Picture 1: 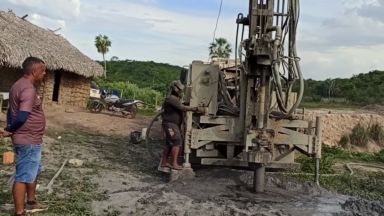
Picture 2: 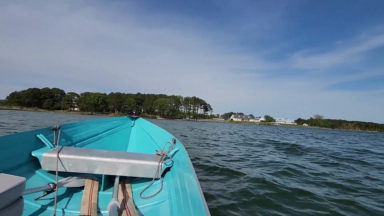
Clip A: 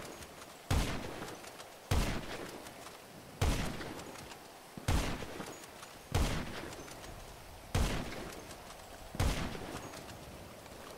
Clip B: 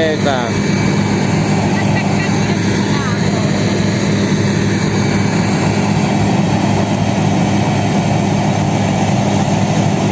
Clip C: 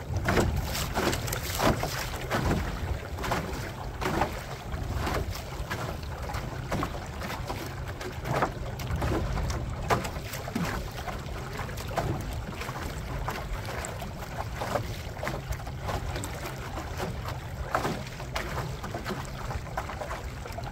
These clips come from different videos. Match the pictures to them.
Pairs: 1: B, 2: C